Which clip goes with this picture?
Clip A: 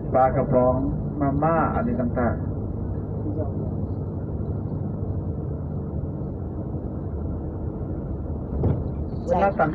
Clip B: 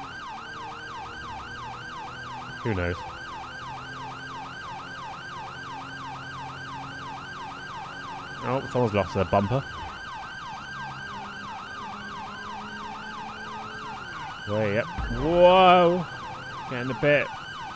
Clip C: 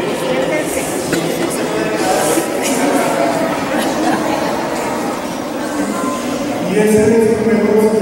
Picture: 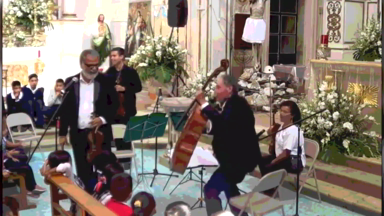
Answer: C